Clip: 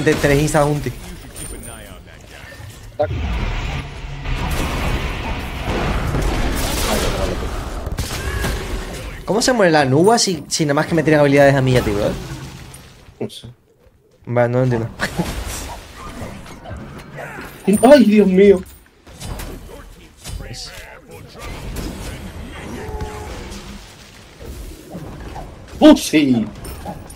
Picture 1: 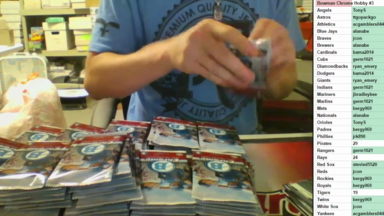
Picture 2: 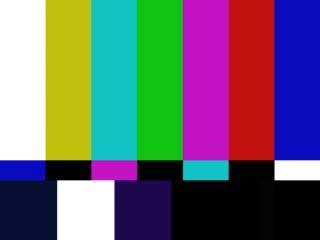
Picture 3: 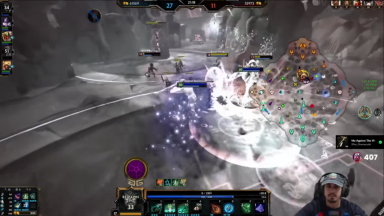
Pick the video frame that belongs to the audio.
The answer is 3